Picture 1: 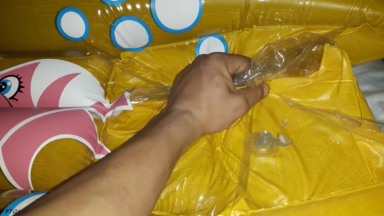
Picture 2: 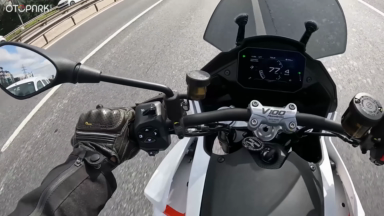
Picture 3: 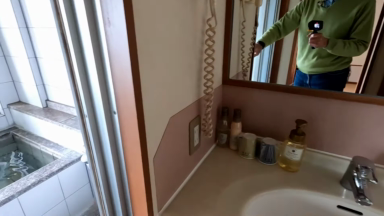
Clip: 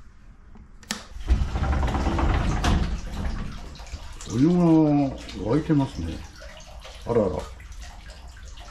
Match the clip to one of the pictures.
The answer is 3